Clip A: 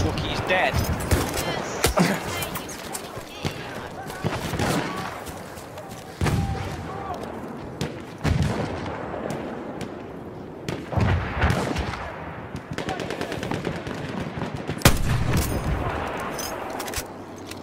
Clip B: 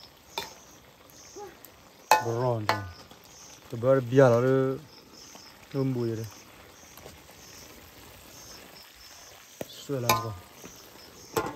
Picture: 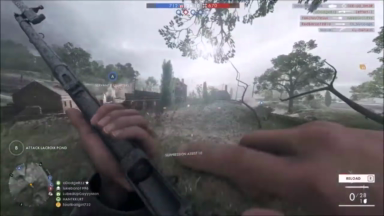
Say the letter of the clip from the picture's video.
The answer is A